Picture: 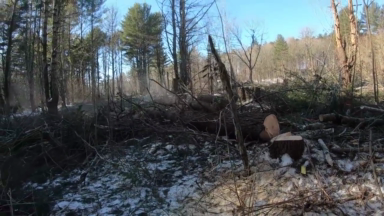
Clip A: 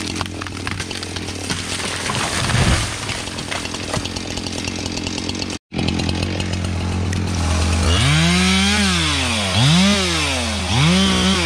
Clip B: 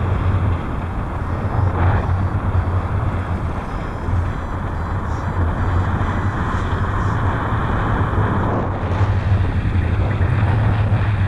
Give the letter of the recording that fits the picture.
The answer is A